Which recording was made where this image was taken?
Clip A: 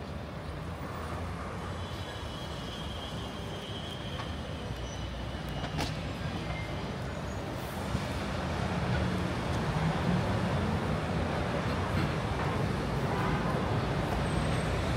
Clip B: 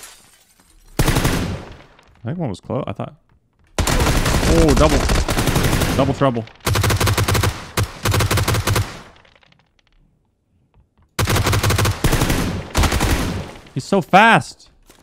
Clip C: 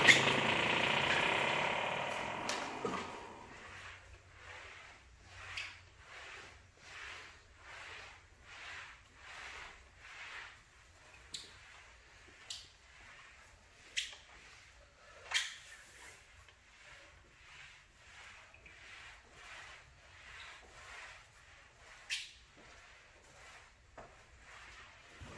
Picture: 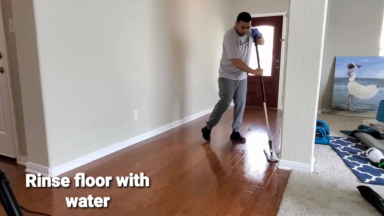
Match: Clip C